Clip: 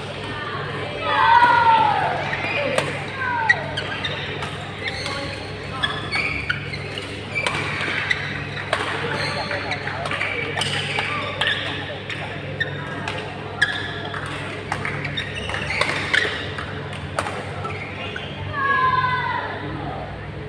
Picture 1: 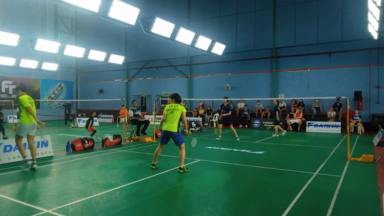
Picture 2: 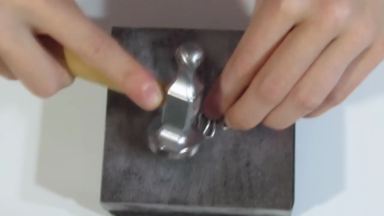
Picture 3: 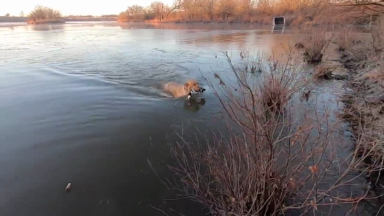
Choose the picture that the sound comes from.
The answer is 1